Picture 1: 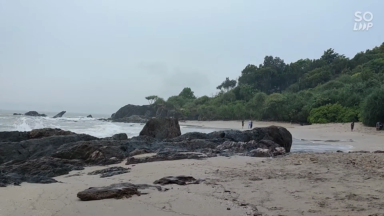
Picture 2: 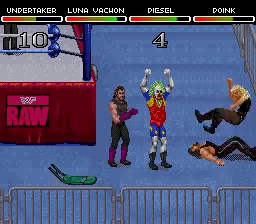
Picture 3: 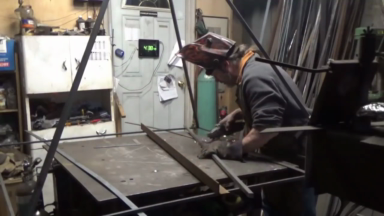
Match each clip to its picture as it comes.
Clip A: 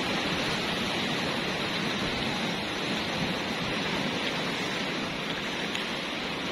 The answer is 1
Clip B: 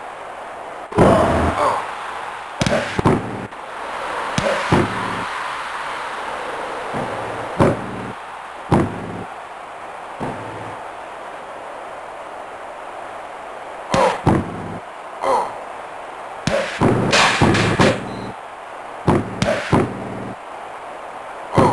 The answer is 2